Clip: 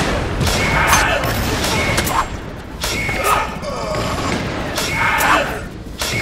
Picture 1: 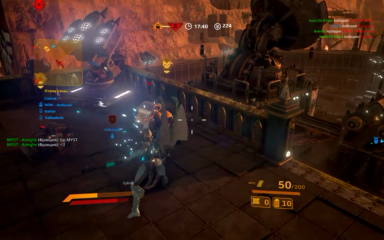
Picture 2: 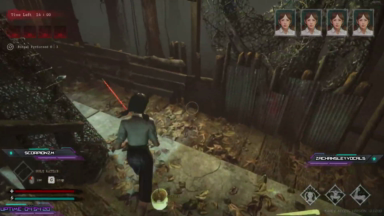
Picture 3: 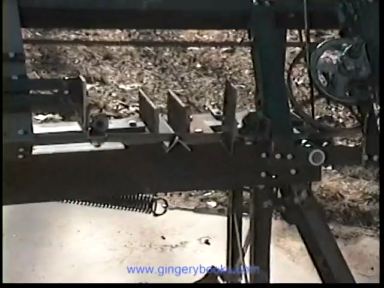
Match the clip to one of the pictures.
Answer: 1